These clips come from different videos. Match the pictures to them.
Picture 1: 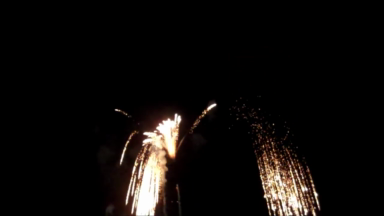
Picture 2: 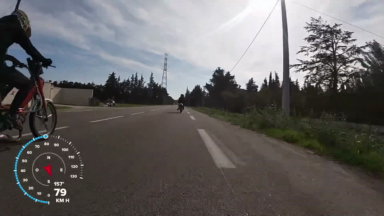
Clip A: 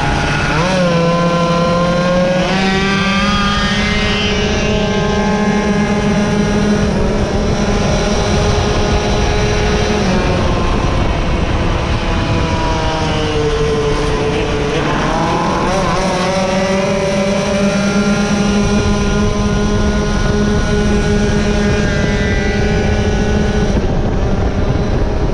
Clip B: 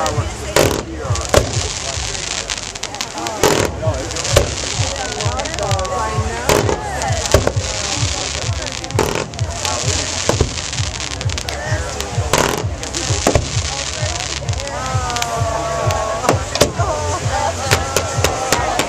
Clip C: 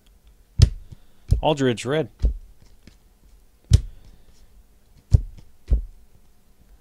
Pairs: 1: B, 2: A